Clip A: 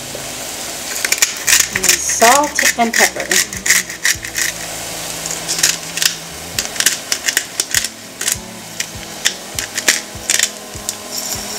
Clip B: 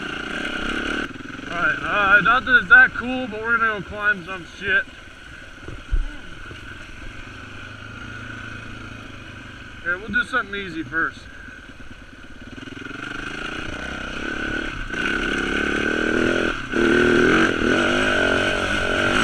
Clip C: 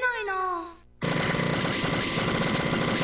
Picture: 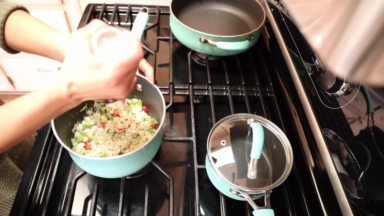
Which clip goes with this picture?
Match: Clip A